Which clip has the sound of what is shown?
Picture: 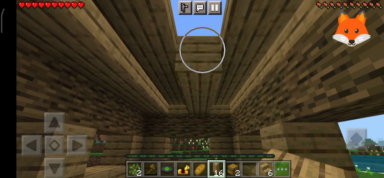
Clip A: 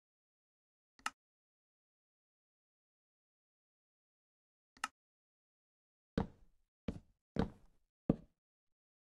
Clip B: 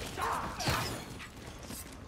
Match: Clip A